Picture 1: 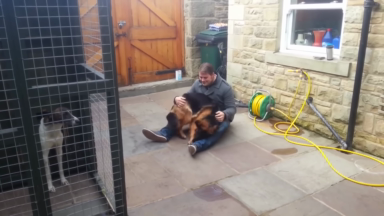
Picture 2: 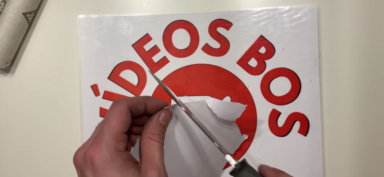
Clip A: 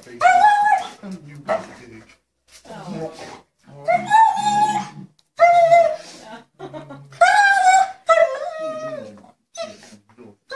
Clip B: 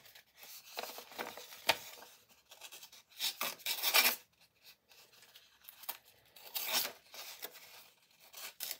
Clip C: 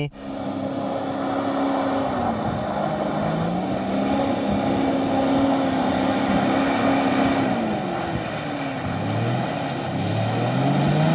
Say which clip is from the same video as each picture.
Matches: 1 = A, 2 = B